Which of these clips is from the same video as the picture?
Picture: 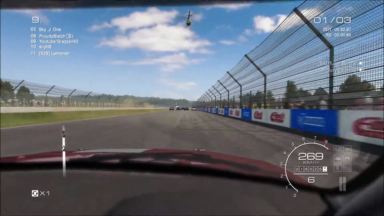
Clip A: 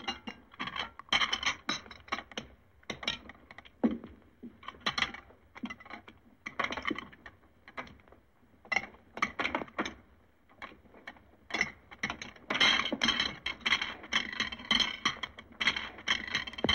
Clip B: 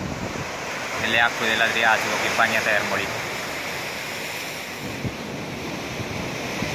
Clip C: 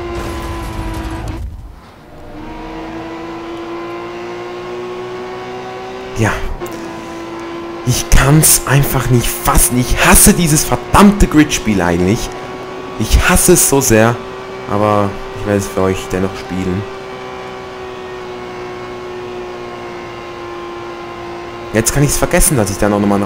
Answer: C